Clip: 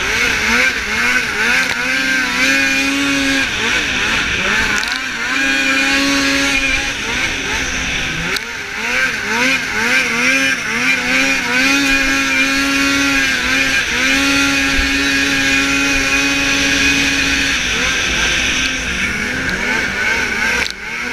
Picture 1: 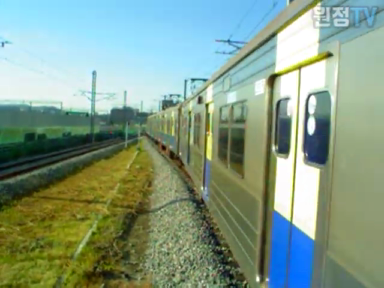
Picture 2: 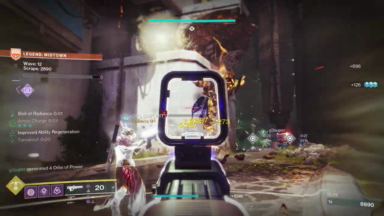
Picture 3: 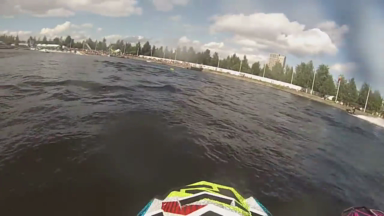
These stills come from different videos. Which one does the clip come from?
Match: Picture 3